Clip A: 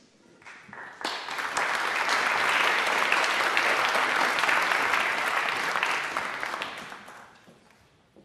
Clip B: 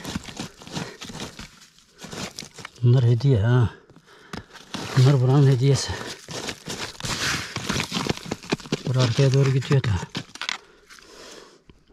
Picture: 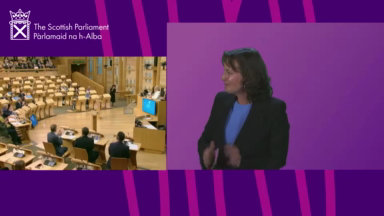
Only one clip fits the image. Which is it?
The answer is A